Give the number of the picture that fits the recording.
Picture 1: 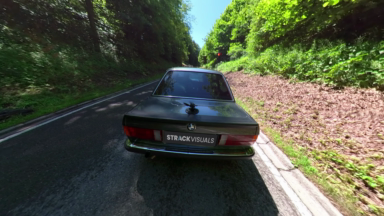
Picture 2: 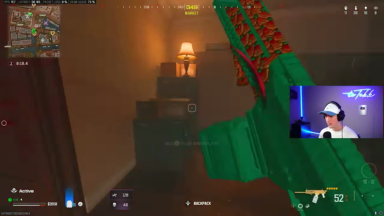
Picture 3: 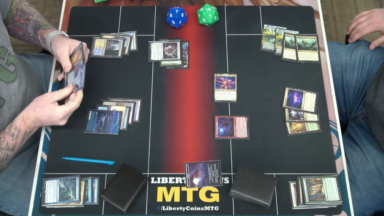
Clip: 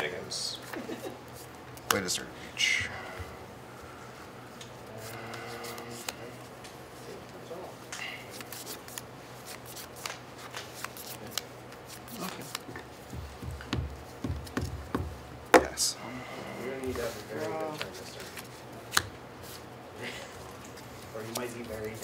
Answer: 3